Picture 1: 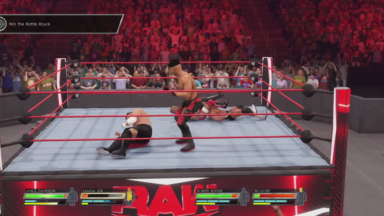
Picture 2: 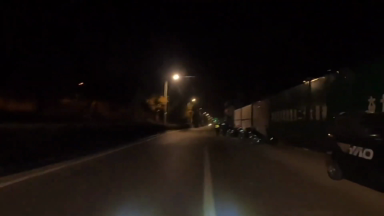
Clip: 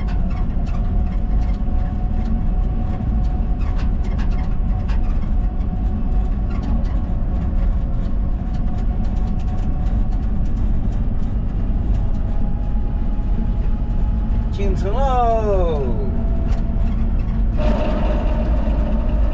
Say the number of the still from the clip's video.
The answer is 2